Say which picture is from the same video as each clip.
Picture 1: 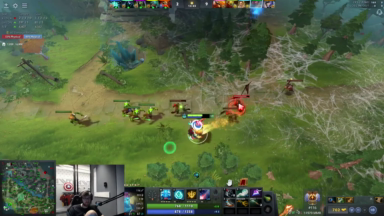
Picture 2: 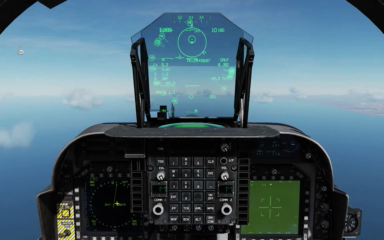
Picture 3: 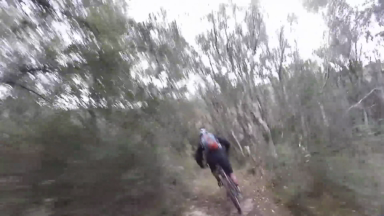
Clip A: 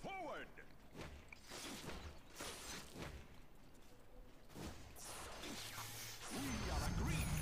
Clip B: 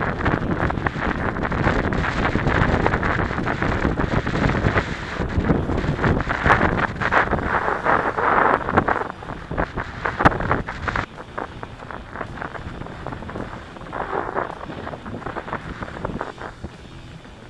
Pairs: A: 1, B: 3